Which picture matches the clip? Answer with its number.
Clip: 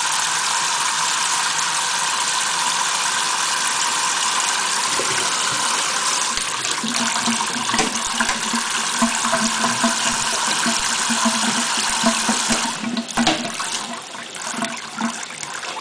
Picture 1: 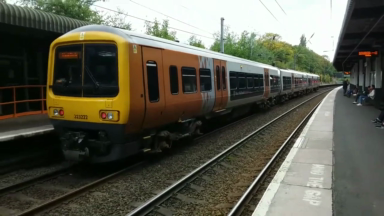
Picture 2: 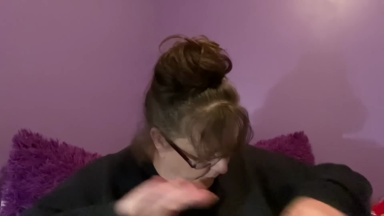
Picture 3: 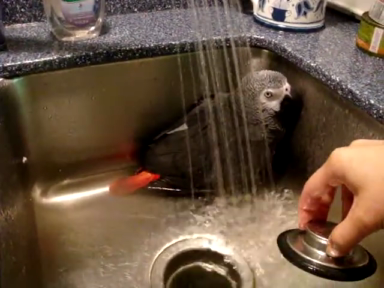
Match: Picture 3